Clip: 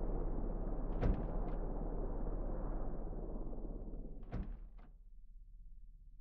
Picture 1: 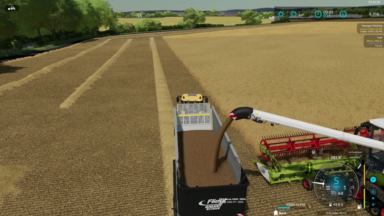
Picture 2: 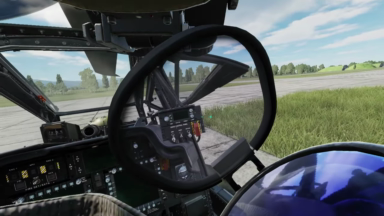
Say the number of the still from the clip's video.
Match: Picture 2